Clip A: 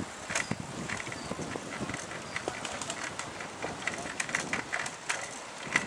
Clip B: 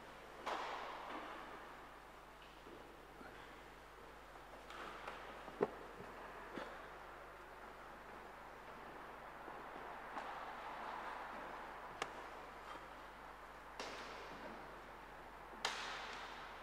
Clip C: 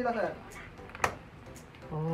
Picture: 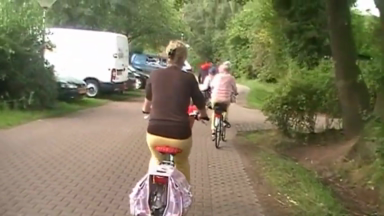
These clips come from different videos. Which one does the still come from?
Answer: A